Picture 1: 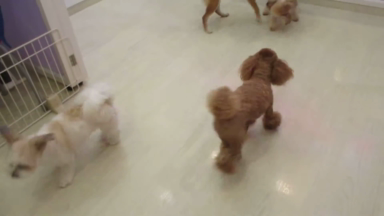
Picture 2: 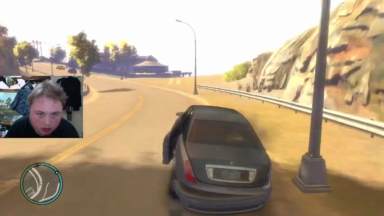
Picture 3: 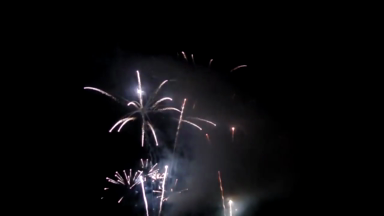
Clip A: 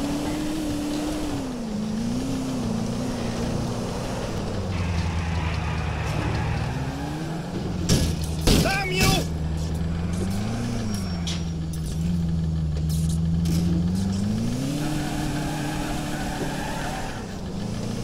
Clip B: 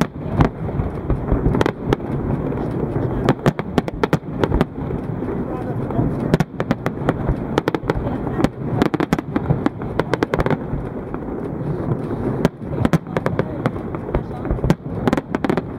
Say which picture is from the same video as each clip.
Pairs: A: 2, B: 3